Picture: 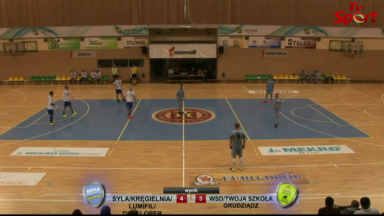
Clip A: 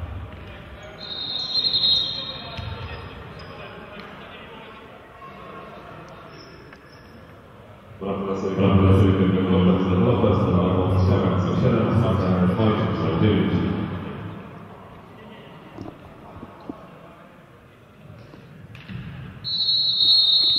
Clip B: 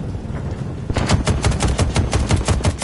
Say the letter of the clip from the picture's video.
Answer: A